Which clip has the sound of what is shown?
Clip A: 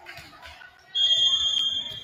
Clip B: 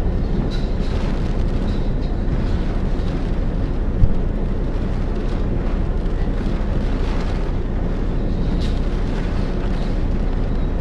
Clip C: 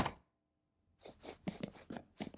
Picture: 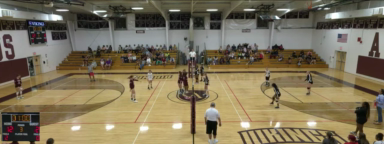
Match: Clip A